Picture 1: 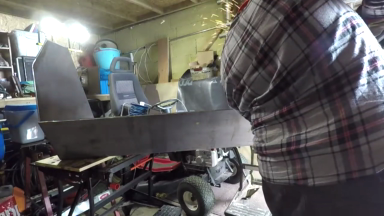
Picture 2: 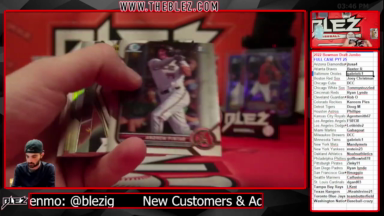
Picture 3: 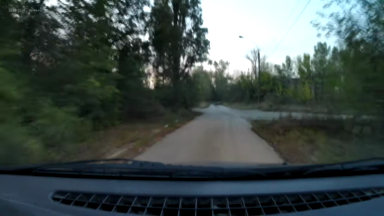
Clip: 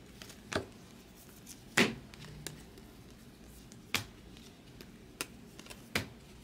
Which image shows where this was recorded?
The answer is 2